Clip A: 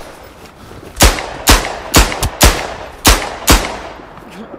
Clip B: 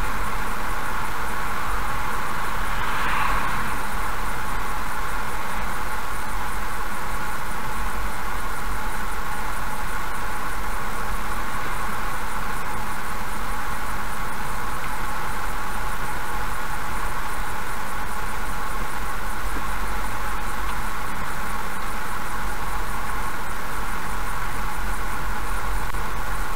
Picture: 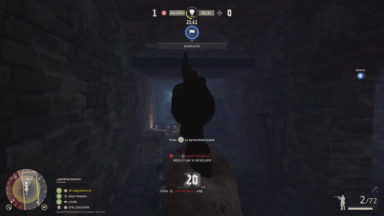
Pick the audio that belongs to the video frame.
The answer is A